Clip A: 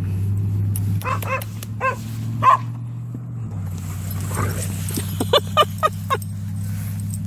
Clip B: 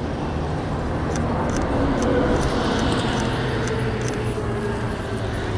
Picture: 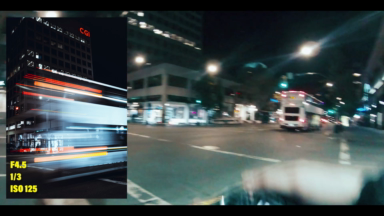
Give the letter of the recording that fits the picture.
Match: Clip B